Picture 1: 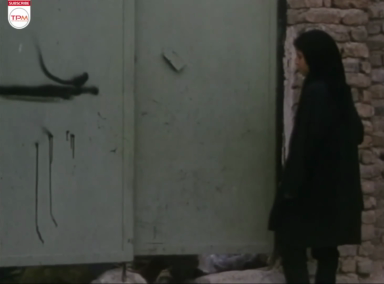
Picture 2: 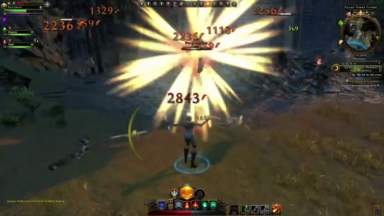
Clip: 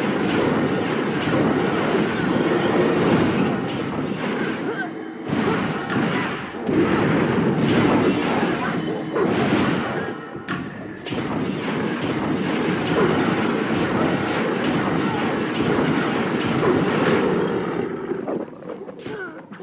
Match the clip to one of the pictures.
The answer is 2